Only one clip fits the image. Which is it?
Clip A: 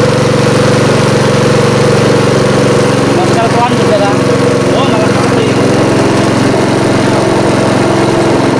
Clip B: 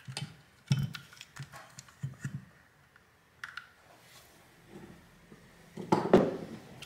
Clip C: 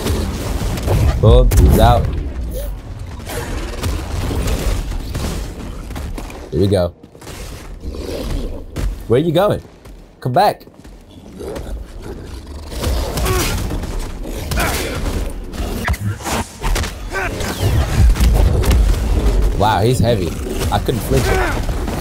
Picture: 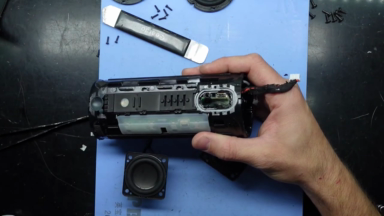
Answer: B